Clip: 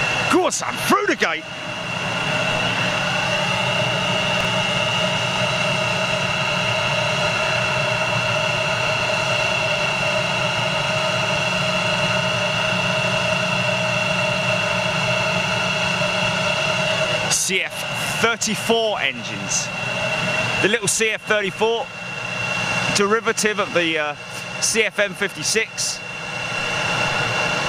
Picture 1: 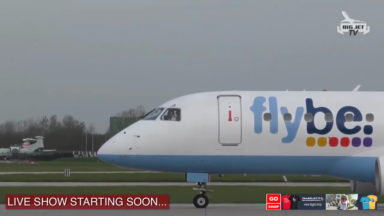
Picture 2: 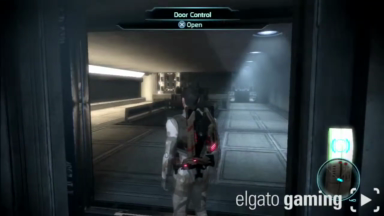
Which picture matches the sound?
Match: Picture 1